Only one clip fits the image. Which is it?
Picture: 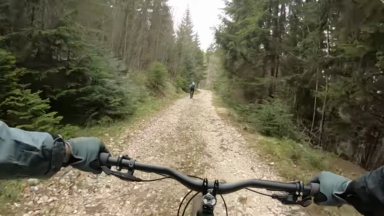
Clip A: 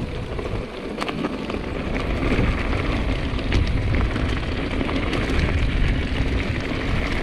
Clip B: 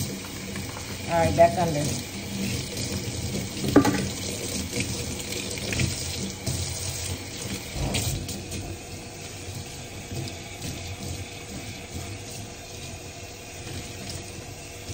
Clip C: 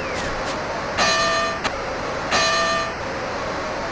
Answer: A